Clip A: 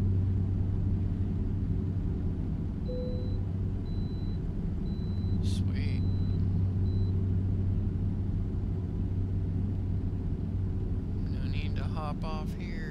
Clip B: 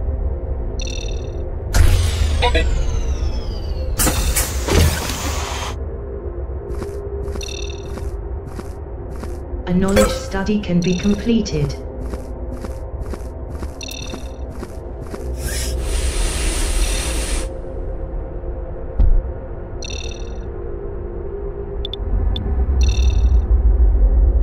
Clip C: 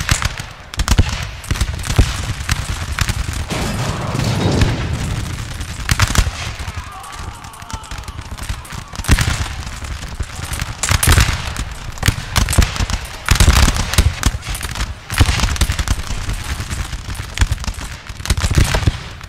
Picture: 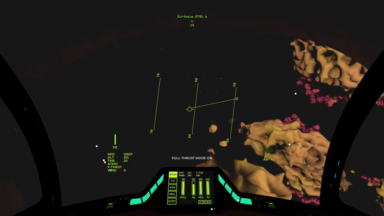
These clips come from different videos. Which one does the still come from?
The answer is B